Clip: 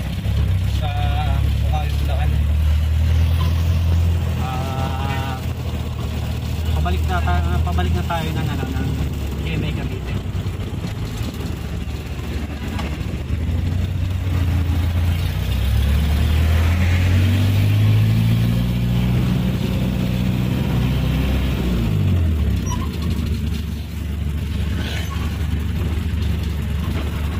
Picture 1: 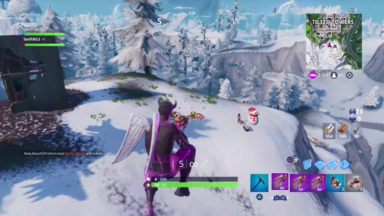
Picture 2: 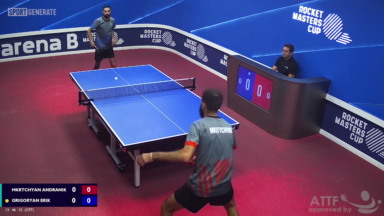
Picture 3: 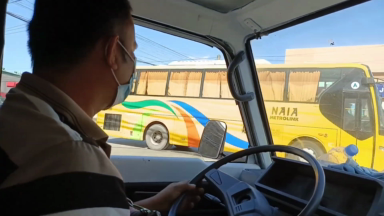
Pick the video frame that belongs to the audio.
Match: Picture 3